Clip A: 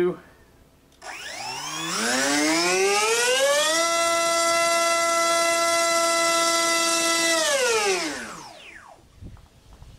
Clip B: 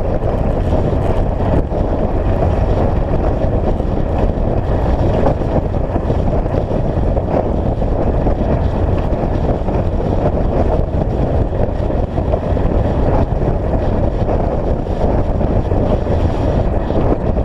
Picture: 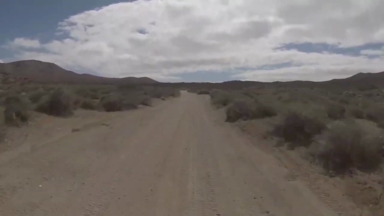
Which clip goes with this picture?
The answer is B